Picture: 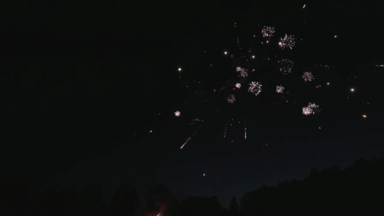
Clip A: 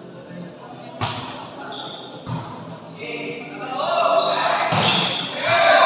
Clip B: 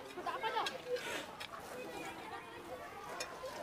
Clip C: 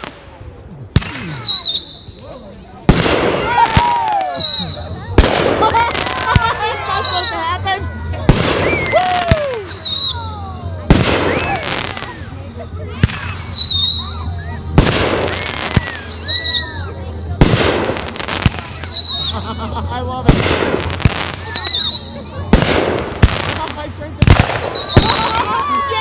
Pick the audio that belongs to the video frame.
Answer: C